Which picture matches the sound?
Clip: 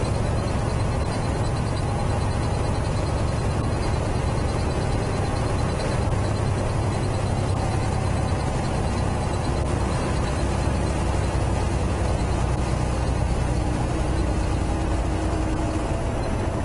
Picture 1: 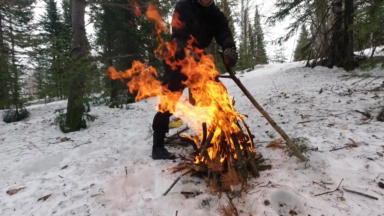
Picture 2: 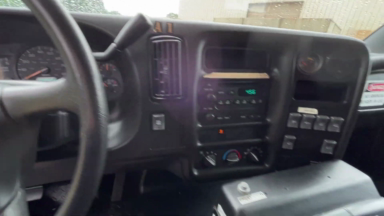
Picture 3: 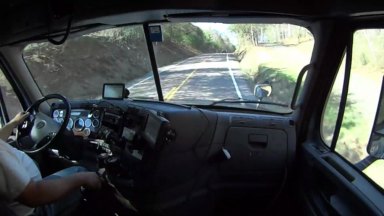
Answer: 3